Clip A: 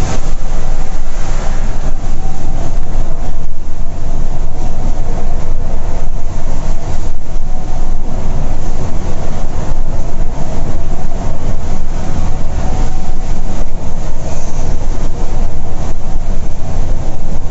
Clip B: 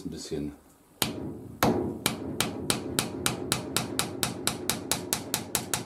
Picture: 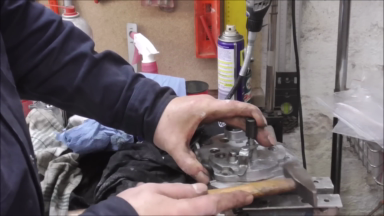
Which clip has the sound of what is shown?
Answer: B